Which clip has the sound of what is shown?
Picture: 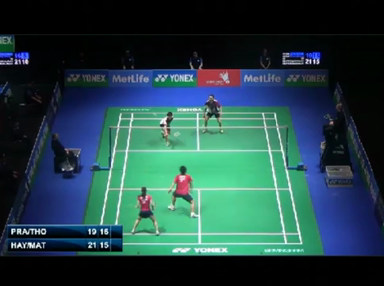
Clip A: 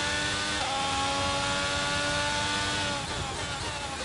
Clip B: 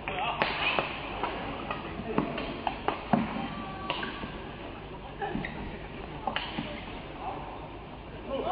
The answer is B